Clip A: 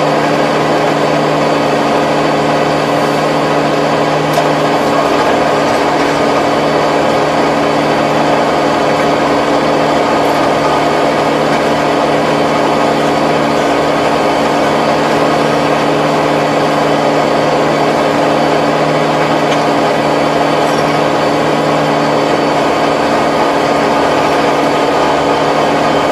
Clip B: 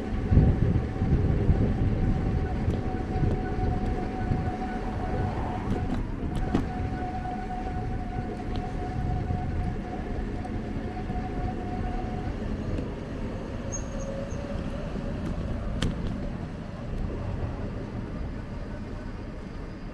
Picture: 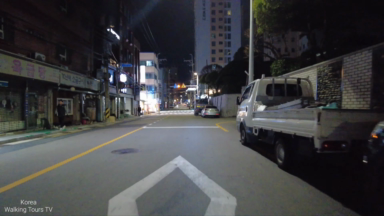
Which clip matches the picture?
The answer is B